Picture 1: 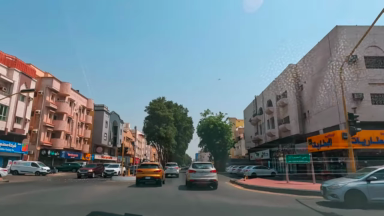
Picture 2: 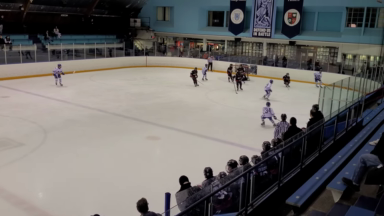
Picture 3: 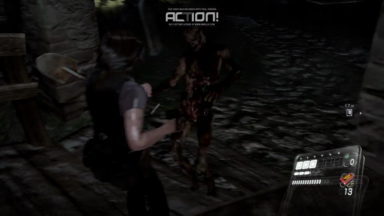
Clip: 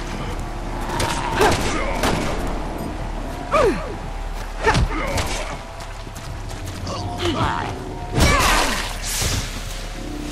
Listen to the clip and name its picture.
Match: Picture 3